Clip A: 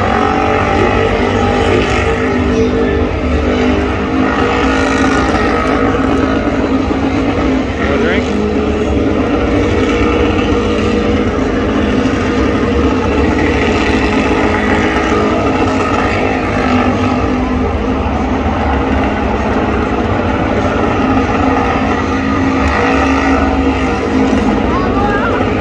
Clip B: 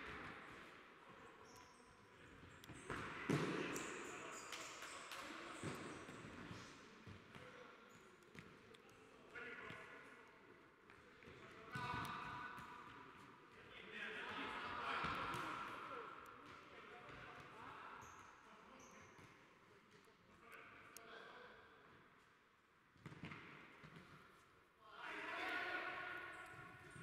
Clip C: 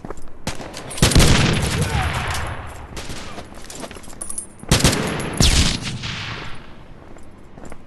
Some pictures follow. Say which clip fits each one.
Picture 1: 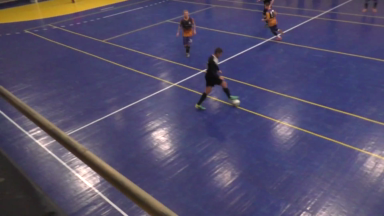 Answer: B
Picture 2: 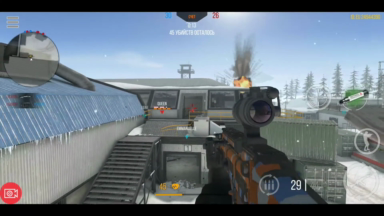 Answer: C